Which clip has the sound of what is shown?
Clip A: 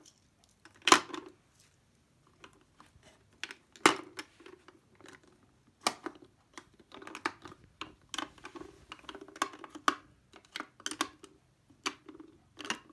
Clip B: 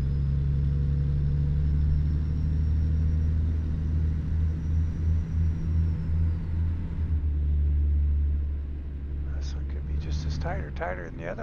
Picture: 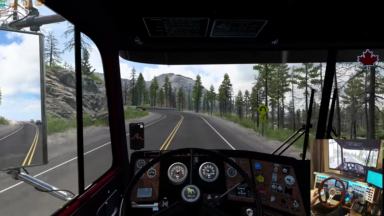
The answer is B